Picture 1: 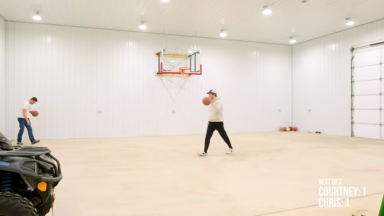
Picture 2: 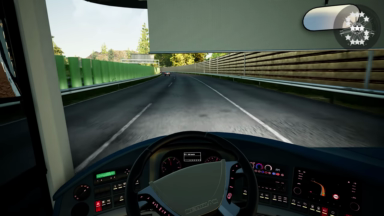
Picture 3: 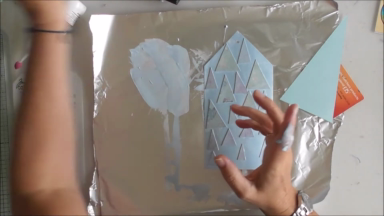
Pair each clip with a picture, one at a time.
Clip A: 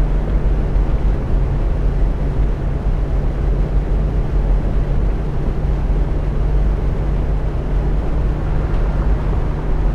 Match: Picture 2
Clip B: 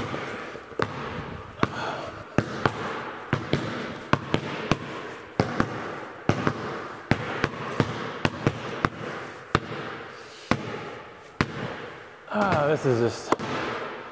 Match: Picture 1